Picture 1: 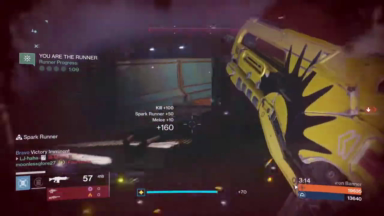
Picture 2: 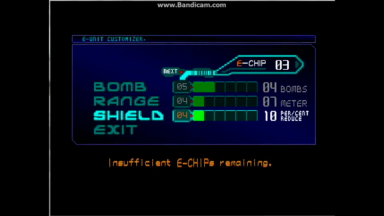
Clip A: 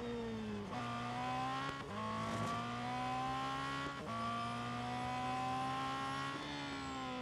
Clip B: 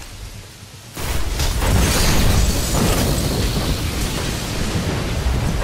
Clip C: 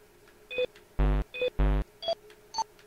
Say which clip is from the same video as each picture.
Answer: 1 B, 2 C